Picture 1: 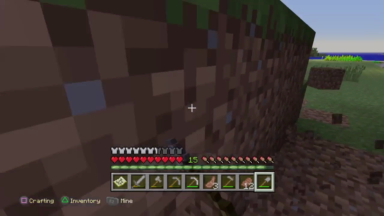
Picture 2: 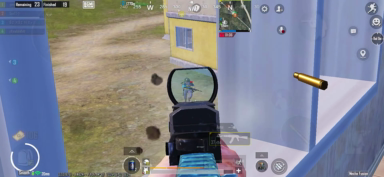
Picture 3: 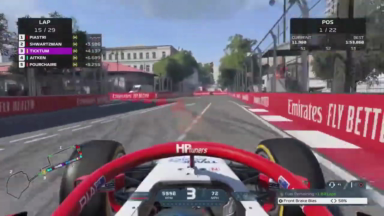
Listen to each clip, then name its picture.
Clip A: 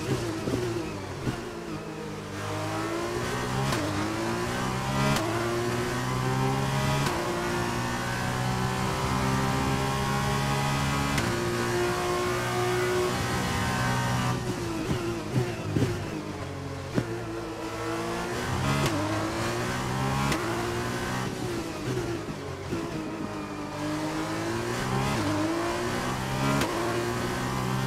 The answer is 3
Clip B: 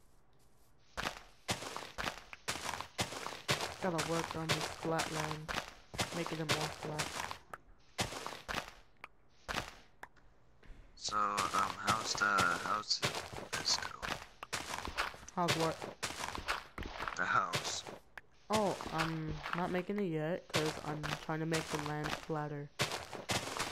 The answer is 1